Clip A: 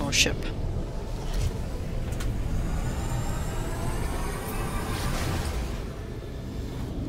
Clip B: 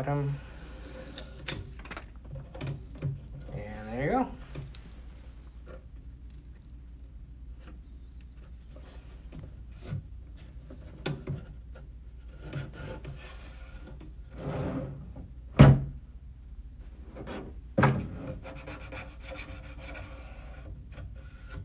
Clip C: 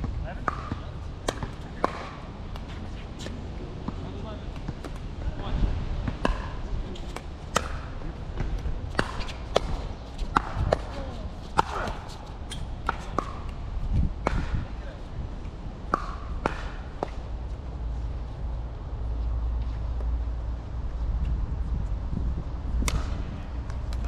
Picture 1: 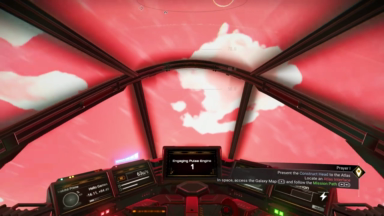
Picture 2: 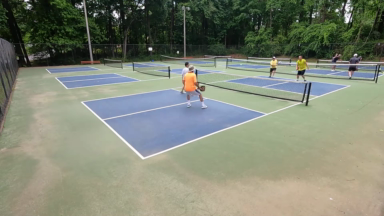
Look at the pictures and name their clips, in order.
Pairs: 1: A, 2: C